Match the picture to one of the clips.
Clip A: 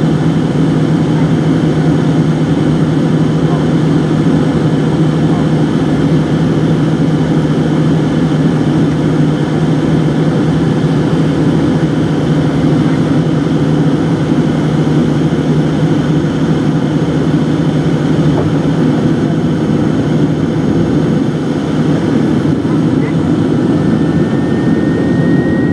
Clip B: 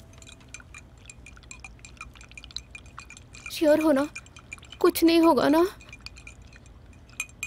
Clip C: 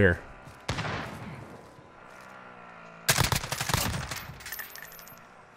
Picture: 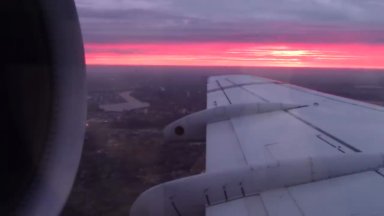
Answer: A